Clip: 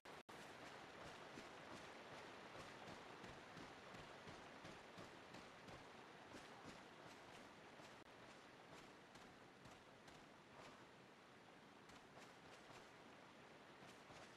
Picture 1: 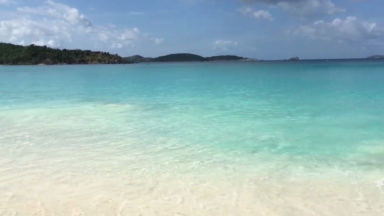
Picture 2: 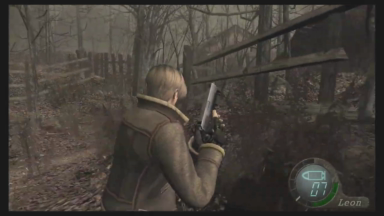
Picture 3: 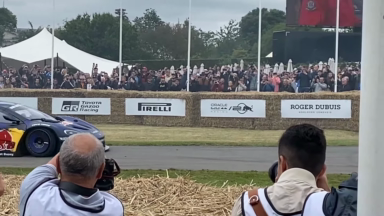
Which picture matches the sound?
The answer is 2